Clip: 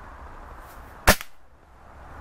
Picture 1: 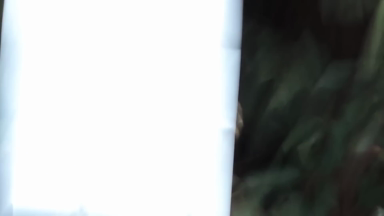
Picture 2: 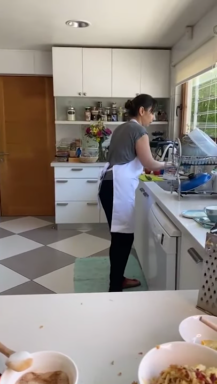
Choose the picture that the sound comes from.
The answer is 1